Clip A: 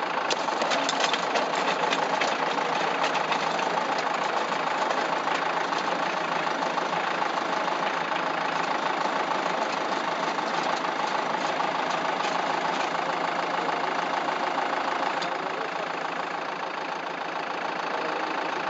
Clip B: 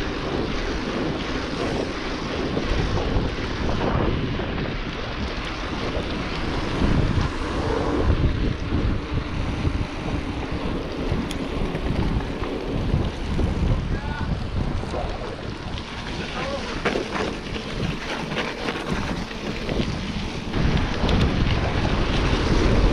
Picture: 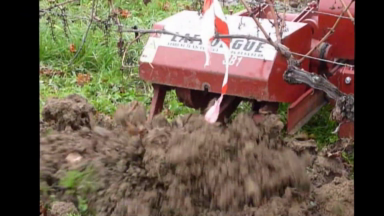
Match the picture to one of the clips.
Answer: A